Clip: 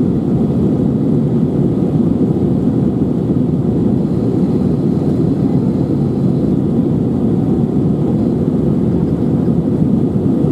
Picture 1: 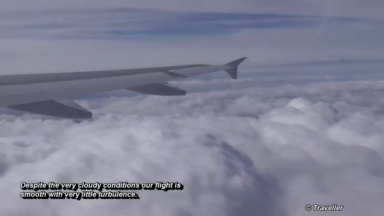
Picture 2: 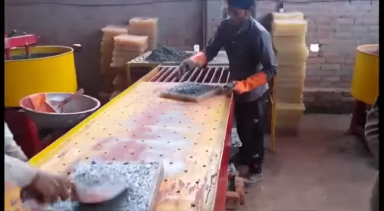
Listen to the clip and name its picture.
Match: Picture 1